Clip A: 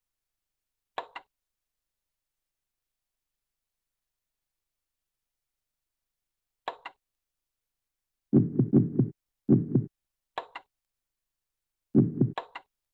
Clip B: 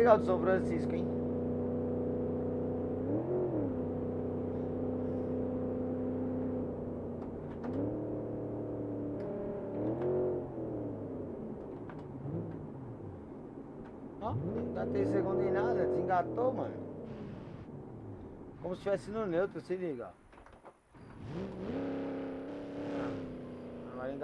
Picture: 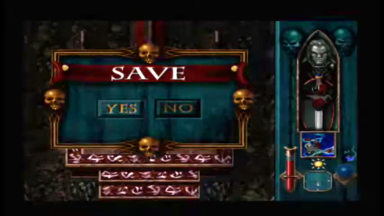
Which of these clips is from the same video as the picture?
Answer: A